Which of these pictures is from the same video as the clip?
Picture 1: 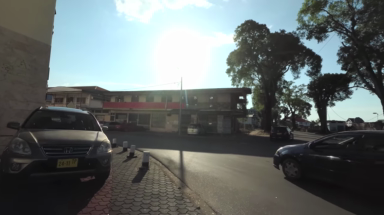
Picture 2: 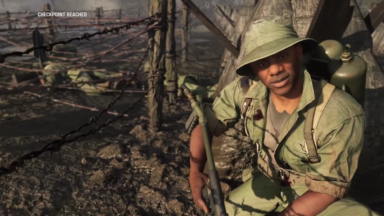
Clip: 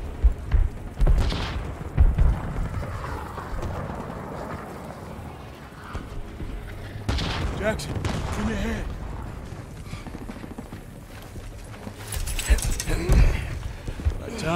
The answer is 2